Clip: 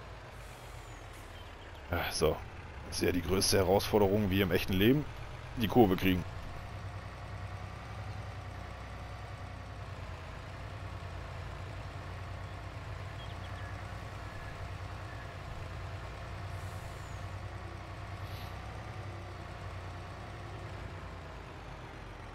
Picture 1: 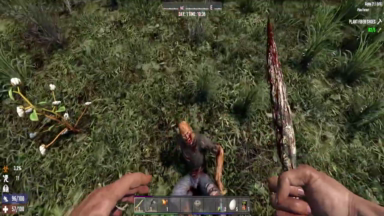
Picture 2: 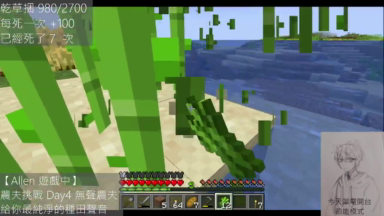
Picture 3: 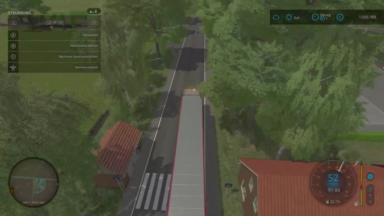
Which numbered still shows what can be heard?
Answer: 3